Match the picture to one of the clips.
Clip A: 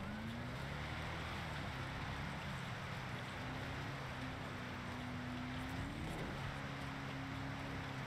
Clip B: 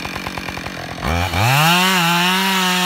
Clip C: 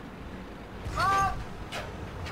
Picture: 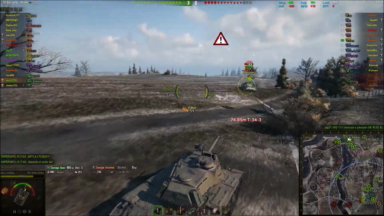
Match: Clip C